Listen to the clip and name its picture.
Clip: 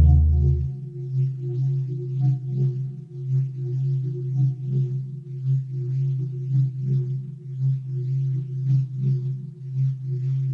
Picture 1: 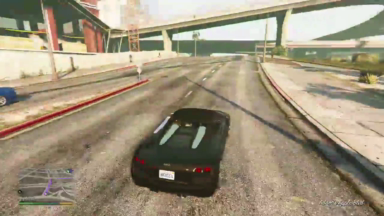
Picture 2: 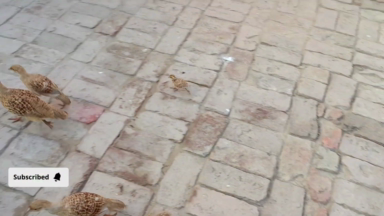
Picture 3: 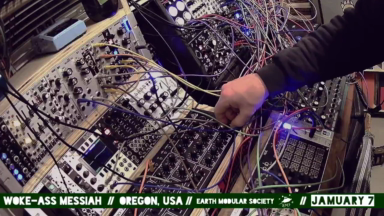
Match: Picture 3